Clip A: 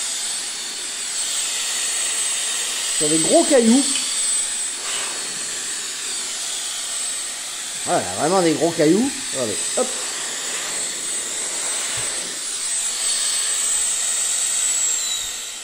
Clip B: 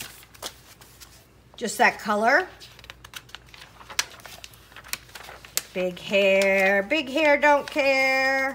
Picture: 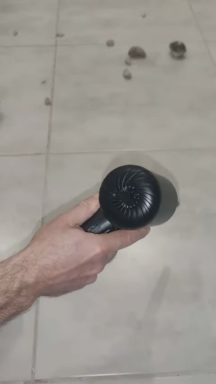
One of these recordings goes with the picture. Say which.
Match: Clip A